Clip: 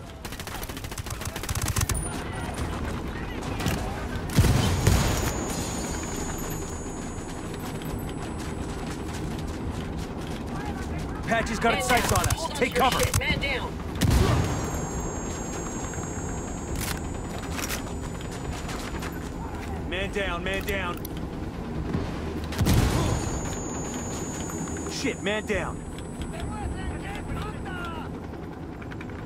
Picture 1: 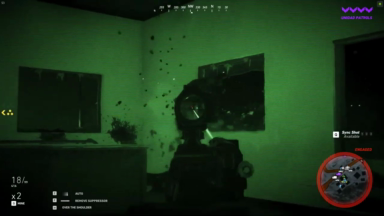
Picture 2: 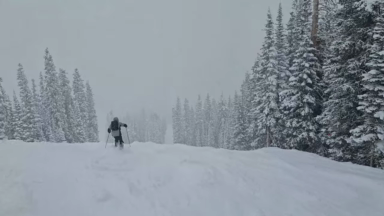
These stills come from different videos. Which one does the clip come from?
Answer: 1